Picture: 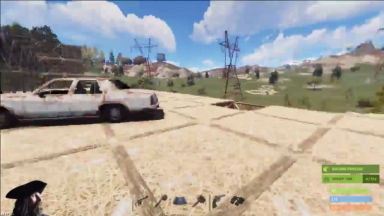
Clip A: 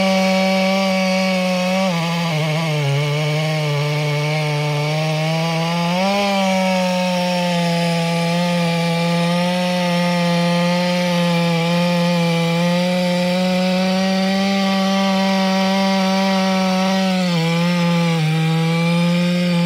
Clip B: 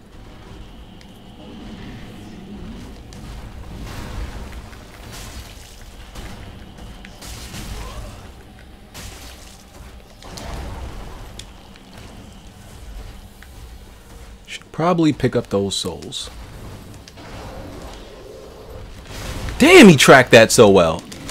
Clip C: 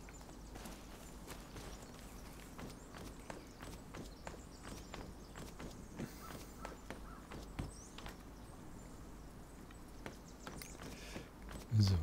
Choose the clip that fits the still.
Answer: C